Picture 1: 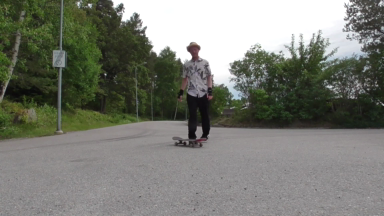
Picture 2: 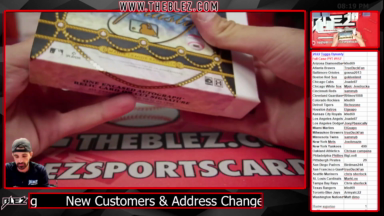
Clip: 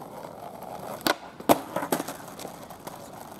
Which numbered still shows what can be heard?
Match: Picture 1